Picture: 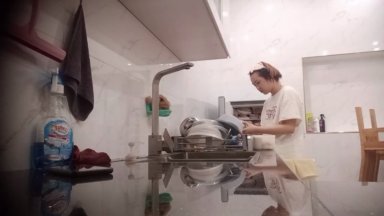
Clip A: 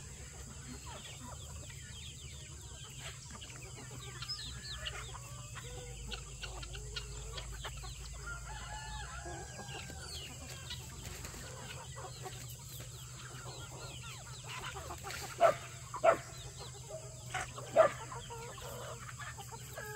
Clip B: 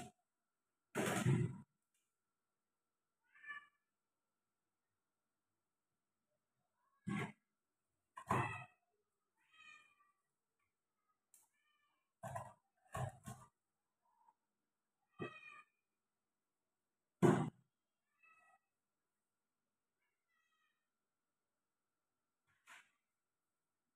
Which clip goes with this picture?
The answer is B